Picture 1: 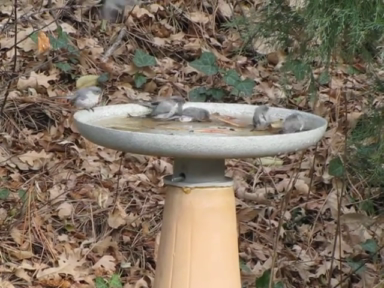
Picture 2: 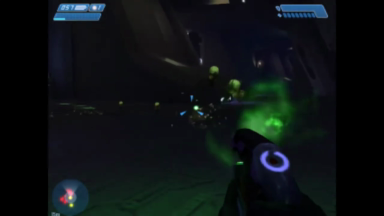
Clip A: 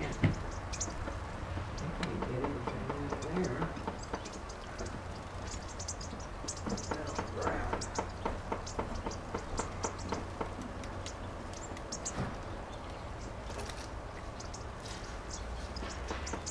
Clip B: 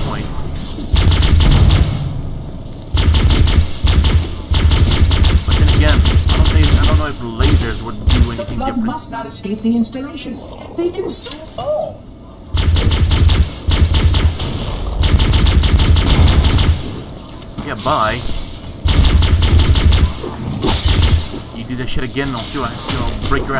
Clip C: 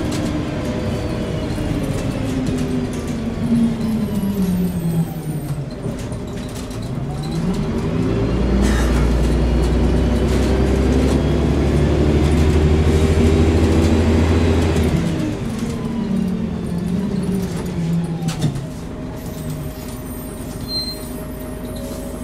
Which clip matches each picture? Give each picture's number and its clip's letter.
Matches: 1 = A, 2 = B